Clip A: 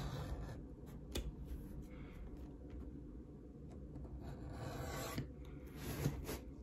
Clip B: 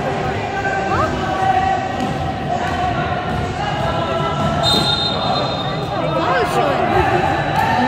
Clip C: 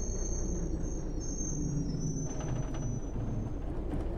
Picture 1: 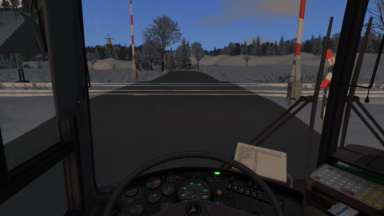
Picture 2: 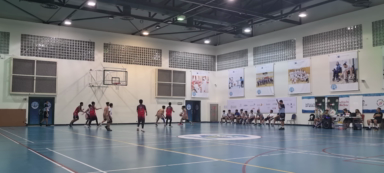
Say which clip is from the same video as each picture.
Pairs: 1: C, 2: B